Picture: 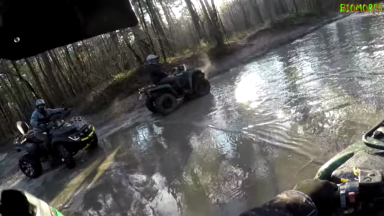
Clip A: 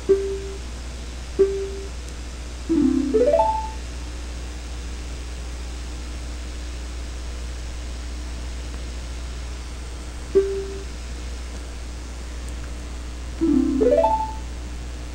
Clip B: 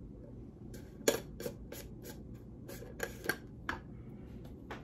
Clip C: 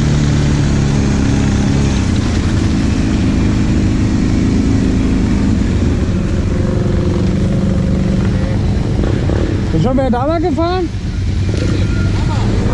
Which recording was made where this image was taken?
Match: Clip C